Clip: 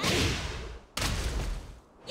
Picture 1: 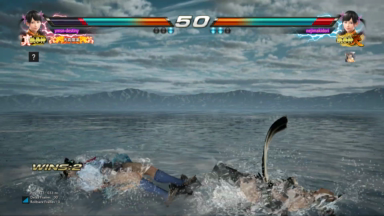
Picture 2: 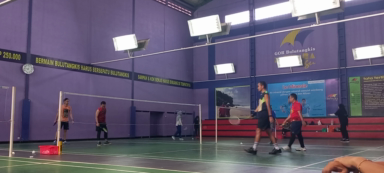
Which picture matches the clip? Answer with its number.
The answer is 1